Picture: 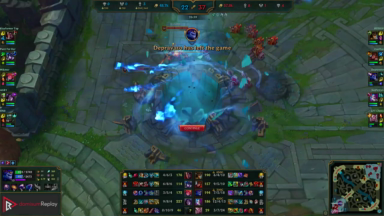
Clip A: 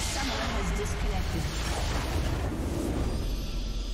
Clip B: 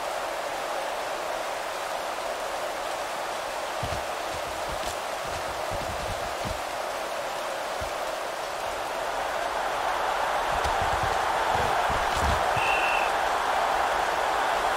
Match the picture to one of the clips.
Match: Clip A